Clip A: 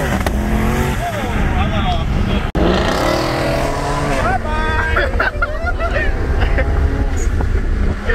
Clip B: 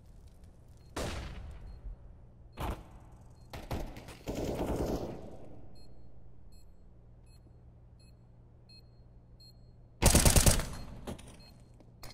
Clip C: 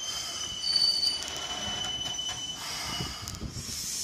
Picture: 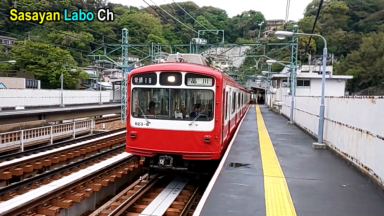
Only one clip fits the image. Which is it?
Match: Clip C